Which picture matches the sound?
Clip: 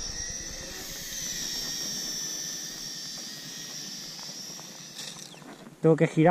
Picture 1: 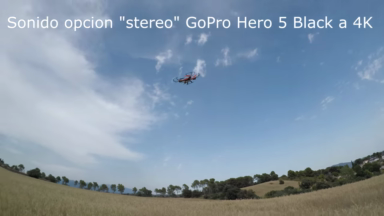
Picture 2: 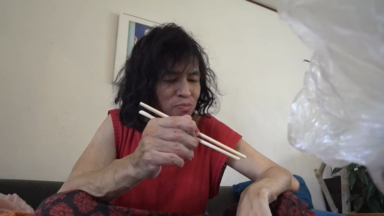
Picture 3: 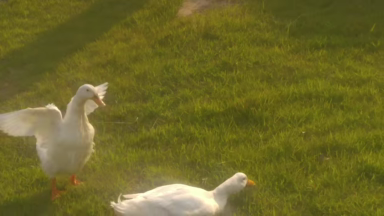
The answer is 1